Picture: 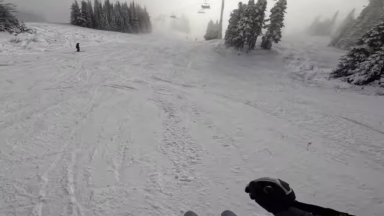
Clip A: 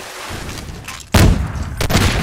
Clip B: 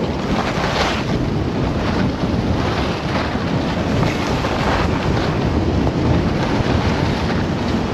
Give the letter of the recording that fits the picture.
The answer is B